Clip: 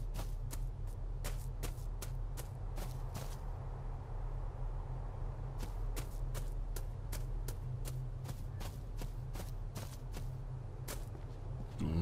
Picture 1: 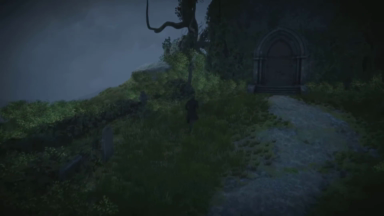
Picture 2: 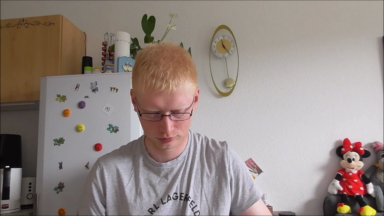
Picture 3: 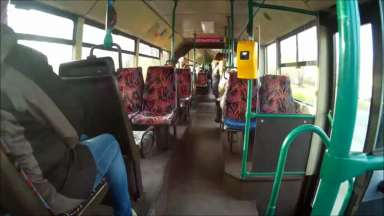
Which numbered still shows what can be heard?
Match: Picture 1